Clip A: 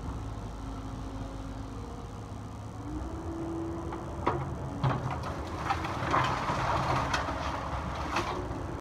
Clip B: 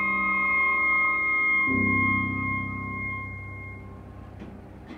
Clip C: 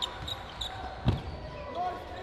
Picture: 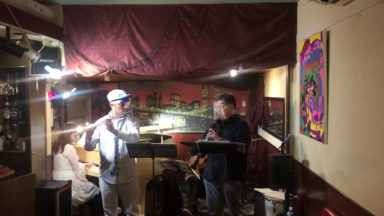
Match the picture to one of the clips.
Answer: B